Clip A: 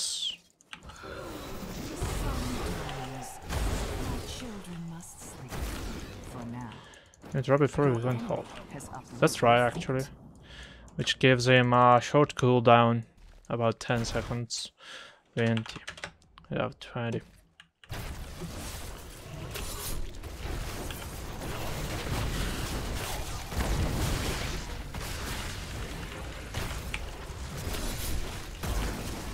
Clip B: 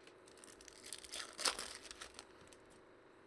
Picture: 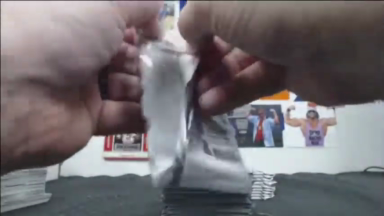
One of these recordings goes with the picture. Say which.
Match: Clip B